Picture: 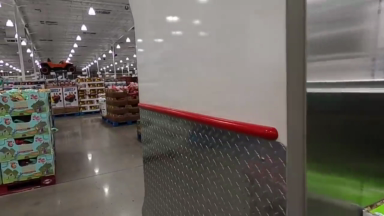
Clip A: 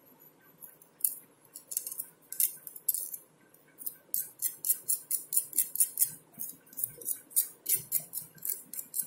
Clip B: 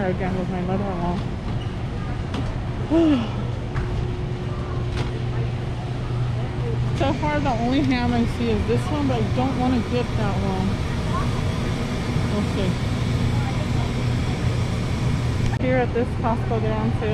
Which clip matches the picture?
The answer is B